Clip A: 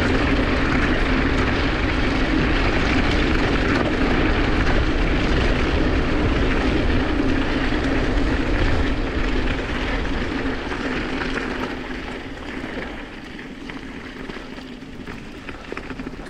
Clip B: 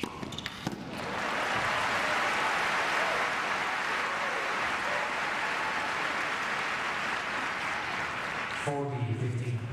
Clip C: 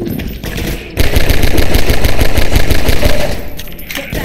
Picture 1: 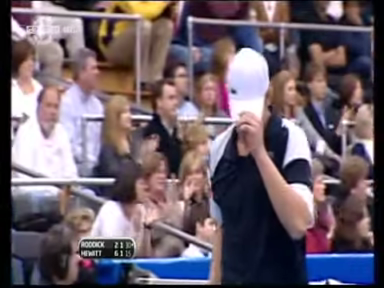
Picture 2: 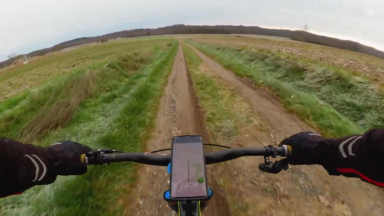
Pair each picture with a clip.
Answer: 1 B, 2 A